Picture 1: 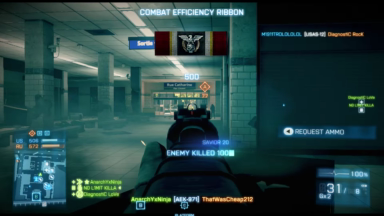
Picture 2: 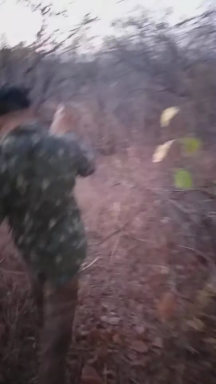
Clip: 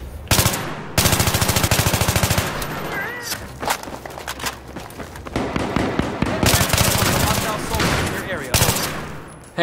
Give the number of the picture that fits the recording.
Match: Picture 1